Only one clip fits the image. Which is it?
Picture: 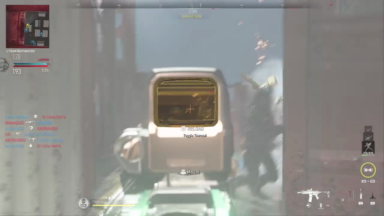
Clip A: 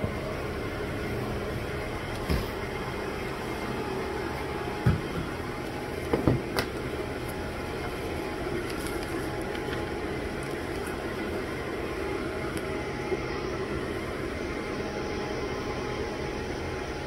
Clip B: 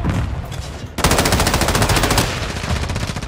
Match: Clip B